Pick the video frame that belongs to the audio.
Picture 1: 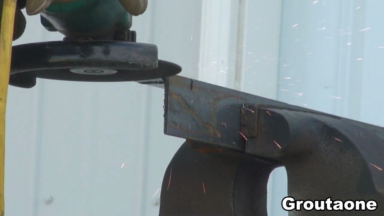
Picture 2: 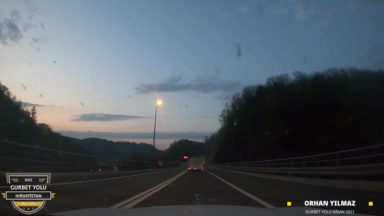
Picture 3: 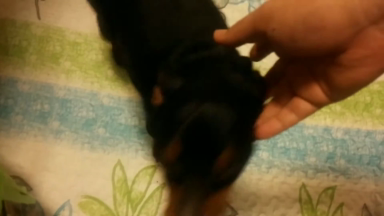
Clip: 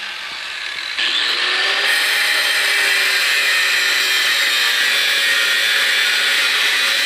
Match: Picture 1